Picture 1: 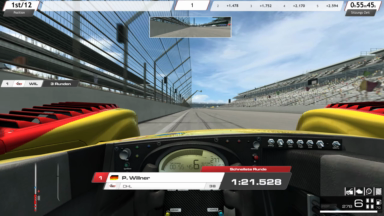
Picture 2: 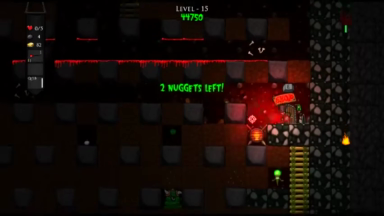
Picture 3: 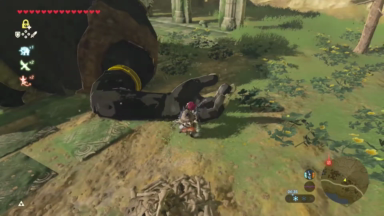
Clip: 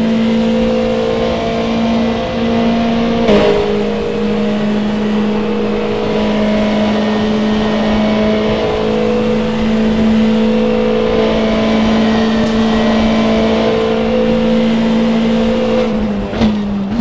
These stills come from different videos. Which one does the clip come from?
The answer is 1